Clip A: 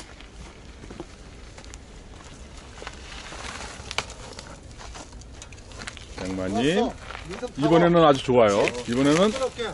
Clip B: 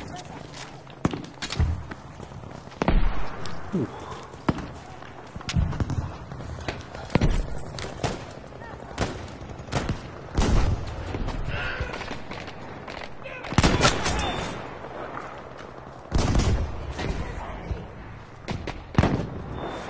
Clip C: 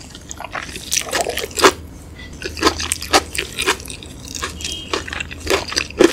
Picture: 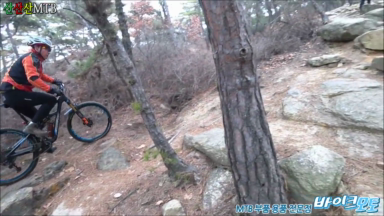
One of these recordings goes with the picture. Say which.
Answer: A